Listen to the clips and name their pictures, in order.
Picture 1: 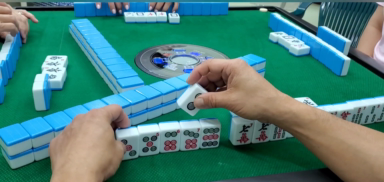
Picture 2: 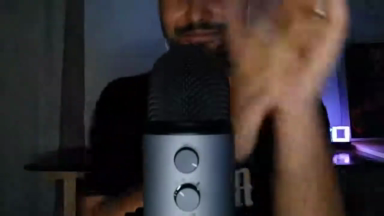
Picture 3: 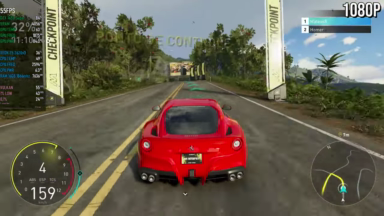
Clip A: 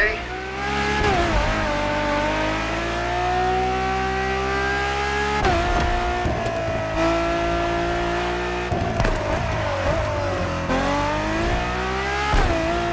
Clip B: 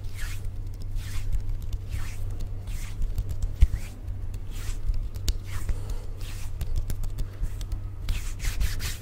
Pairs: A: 3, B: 2